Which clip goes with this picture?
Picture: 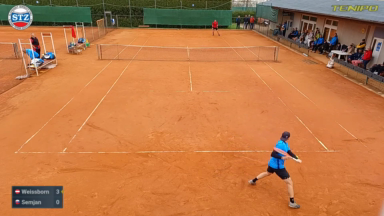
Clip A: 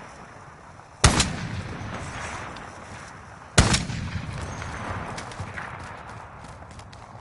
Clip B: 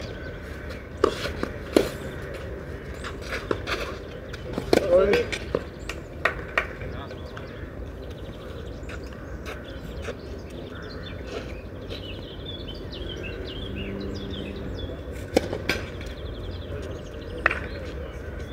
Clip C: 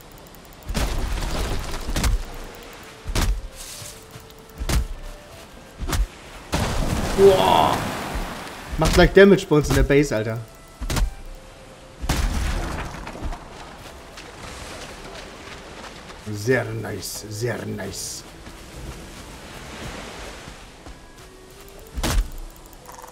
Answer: B